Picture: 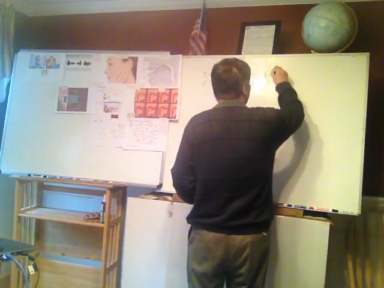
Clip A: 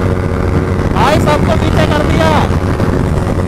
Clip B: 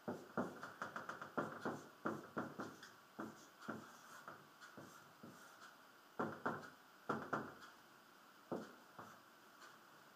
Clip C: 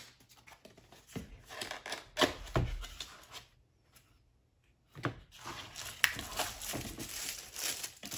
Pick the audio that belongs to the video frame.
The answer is B